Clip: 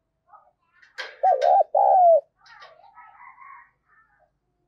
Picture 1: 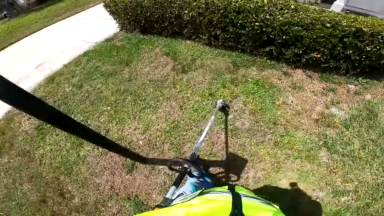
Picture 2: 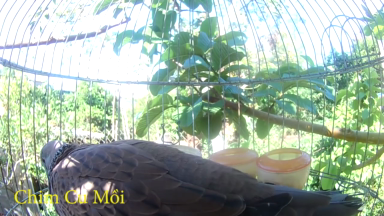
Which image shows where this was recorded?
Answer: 2